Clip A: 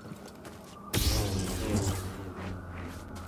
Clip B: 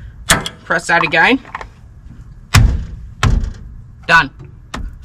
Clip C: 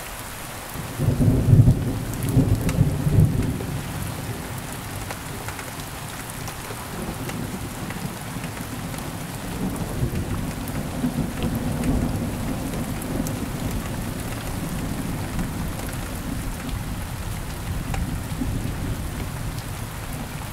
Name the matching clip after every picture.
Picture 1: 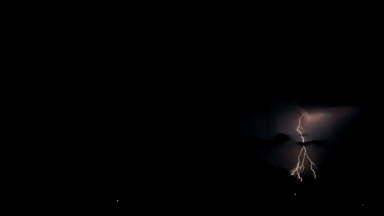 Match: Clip C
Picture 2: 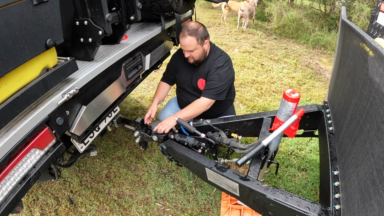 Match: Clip B